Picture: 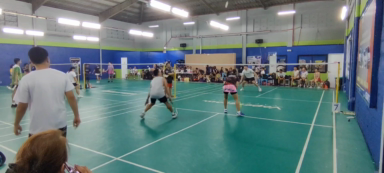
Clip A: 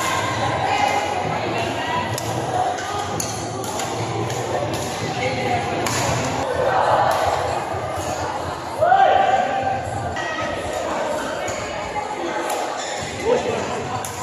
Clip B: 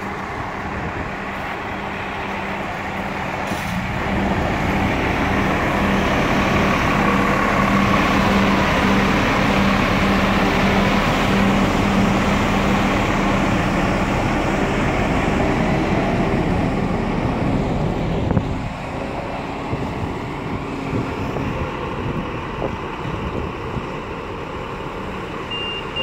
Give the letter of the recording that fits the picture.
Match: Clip A